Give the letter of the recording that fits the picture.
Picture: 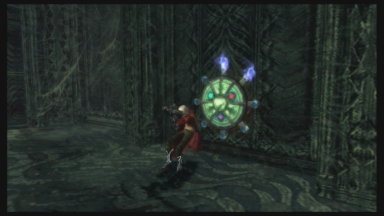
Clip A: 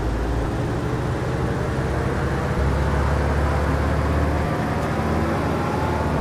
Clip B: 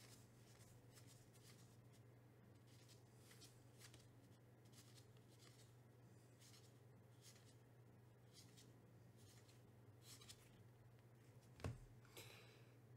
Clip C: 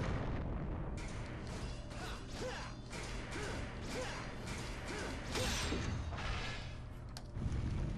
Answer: C